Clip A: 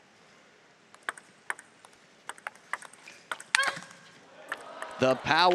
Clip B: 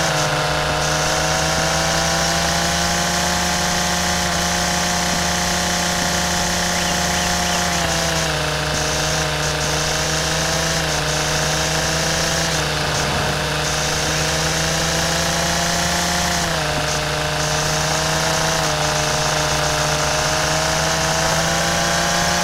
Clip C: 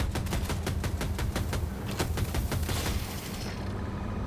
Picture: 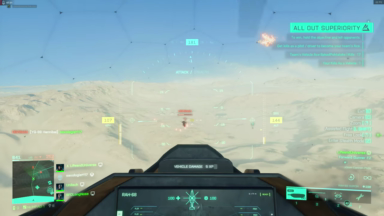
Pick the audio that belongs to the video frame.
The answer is C